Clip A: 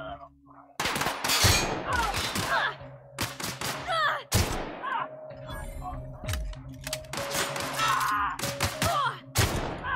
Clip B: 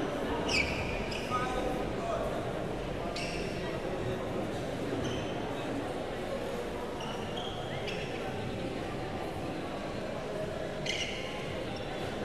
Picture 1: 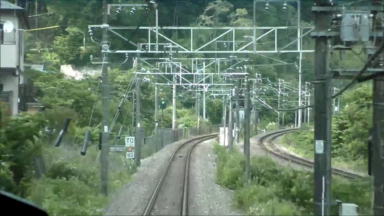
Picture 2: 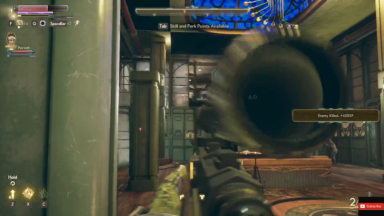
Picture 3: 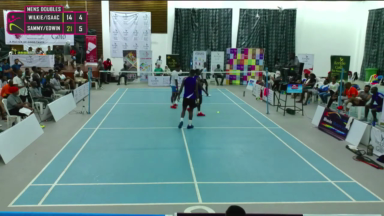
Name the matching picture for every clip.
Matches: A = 2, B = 3